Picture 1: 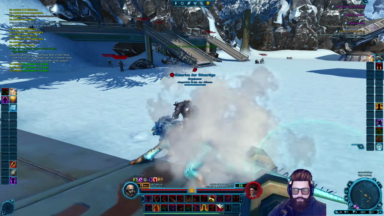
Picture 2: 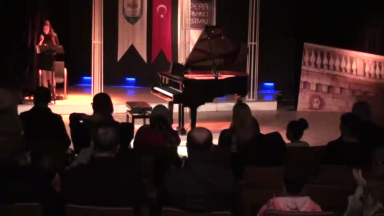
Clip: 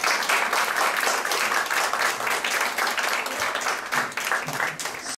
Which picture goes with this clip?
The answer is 2